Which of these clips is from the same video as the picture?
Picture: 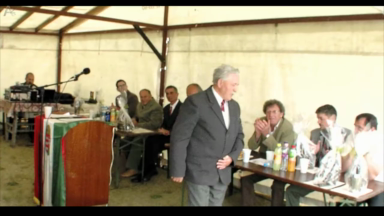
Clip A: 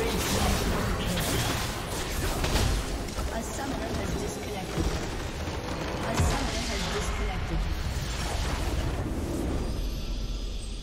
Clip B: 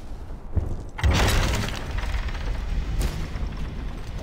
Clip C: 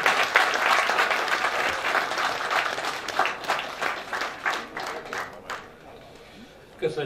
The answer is C